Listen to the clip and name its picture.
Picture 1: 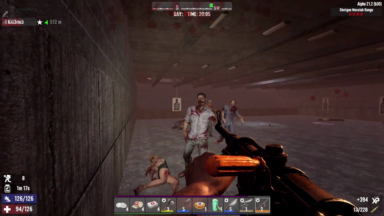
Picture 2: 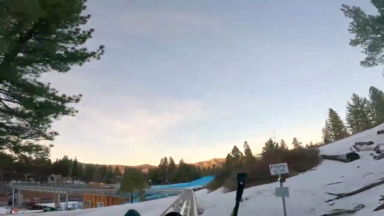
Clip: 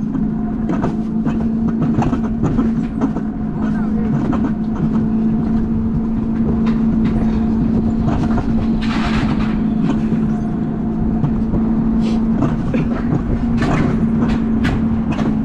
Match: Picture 2